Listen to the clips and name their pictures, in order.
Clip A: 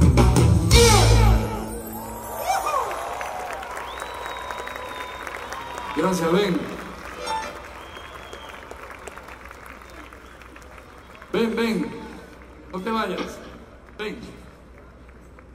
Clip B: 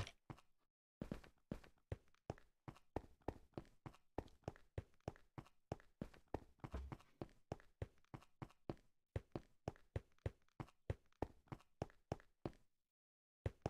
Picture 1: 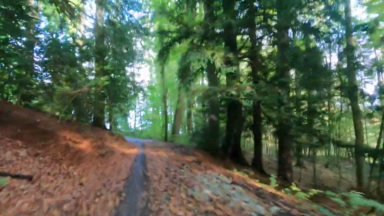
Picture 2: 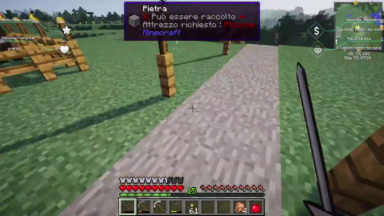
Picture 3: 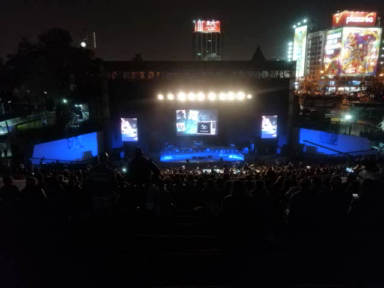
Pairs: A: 3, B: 2